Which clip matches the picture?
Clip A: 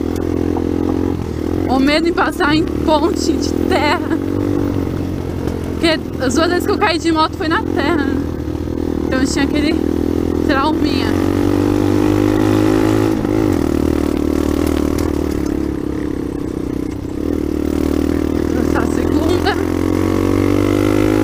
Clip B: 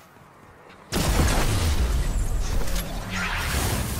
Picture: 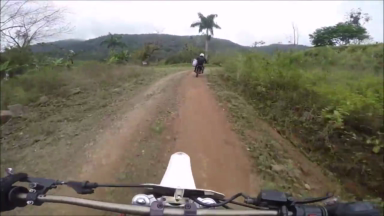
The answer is A